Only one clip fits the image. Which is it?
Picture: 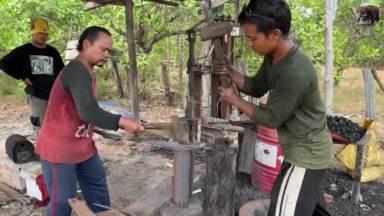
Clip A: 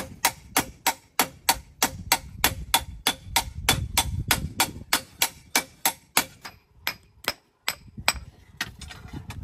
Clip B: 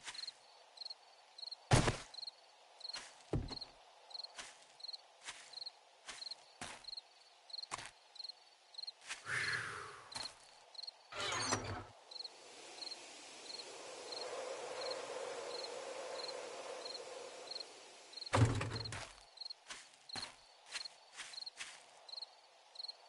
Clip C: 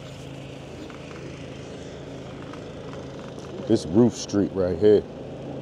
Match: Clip A